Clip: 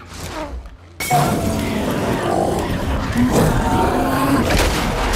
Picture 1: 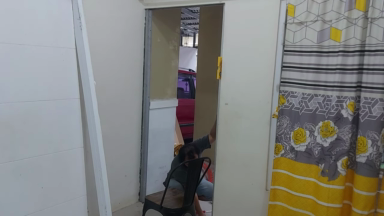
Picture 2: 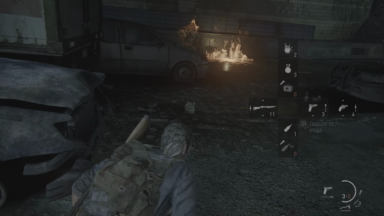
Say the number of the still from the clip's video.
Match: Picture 2